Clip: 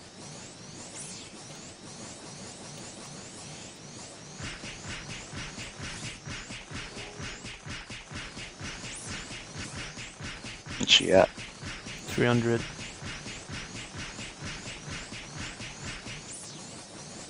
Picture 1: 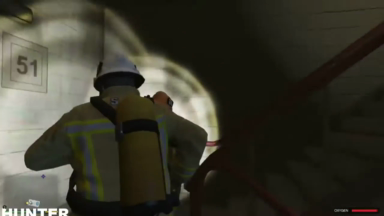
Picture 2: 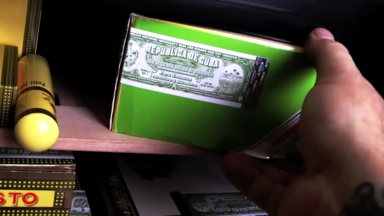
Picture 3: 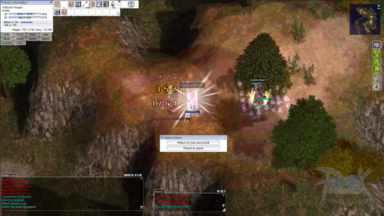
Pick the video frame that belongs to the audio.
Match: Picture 3